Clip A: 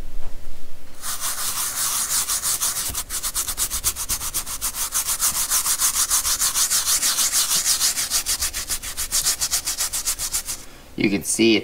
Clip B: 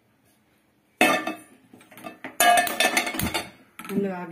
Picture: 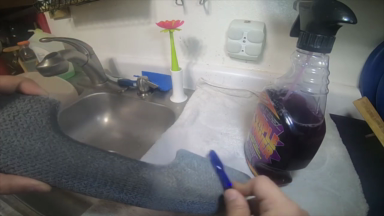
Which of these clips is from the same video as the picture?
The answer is A